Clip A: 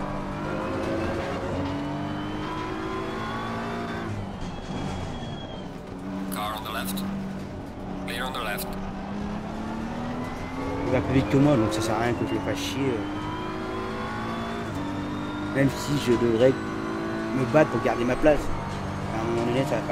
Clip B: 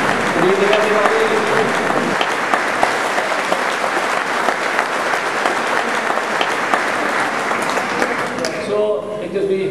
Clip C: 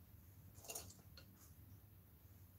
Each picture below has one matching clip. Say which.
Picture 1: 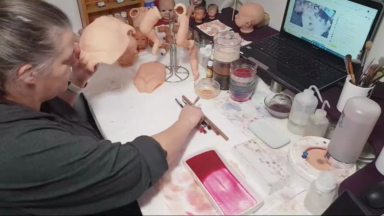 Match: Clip C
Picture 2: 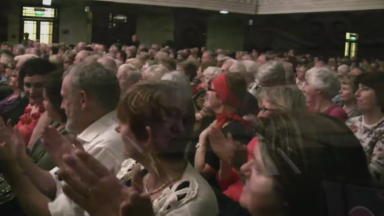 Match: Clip B